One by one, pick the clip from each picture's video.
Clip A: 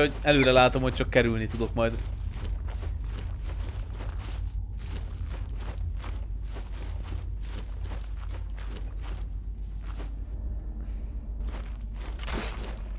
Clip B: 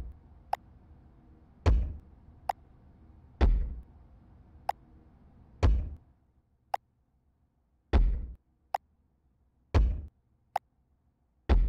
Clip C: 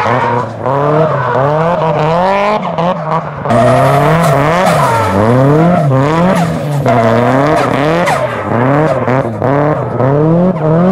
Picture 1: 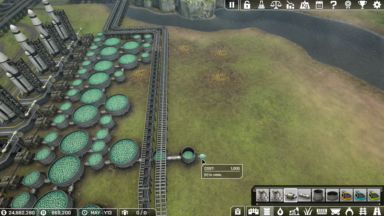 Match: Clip B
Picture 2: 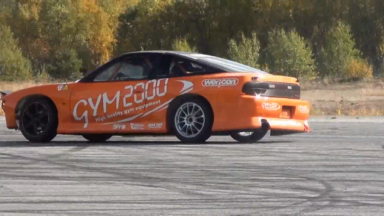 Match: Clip C